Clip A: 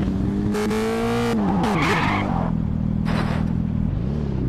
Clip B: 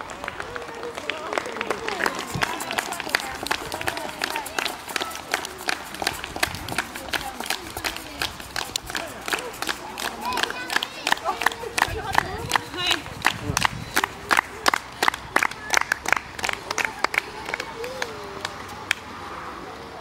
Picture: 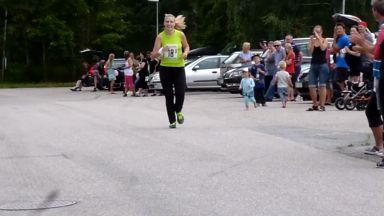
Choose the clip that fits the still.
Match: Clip B